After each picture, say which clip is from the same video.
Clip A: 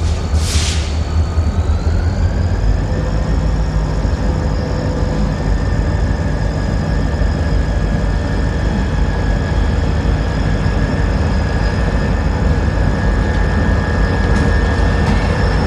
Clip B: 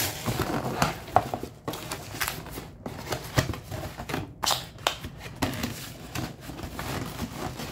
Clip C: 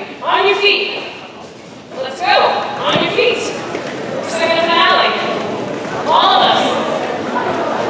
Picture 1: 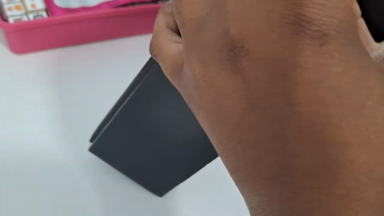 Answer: B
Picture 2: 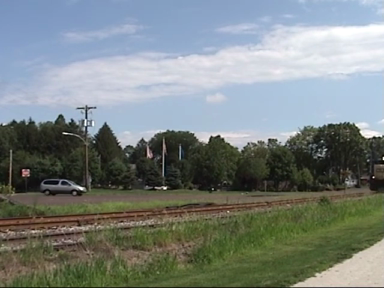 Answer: A